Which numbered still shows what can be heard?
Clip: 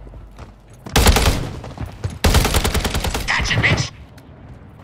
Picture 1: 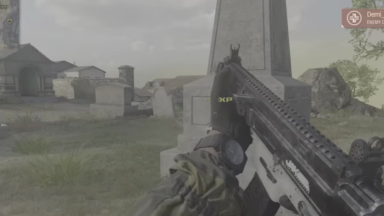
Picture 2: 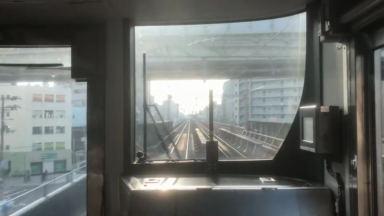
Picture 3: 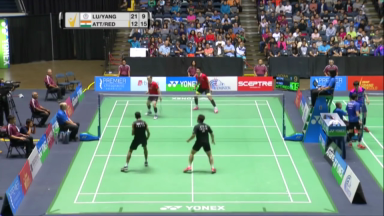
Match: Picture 1